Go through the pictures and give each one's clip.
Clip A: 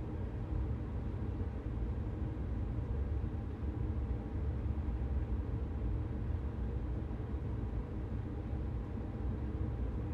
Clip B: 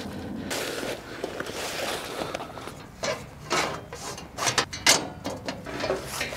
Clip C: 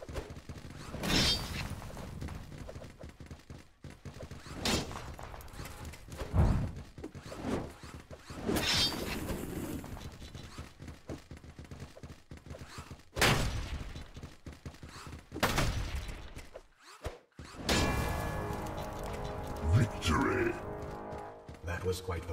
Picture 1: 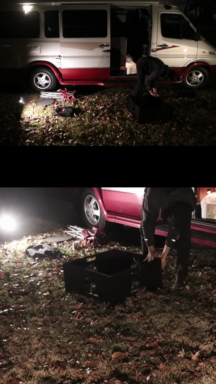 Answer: B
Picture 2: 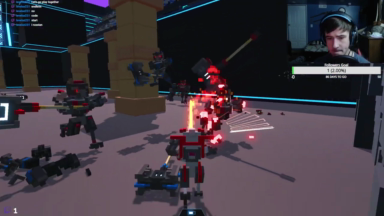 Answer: C